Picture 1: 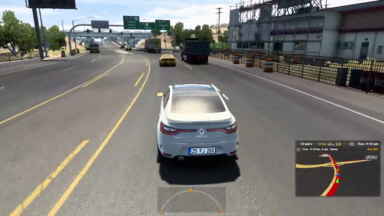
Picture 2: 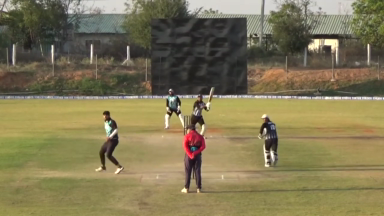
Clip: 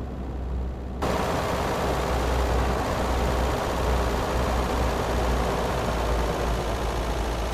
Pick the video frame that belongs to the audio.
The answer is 1